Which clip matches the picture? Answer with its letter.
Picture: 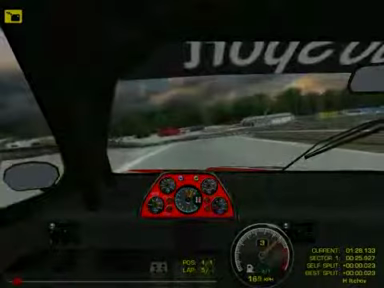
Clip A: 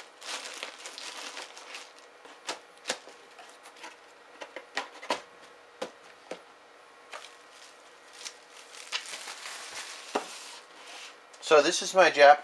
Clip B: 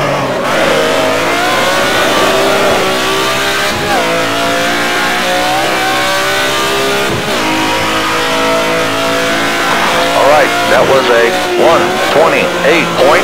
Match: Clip B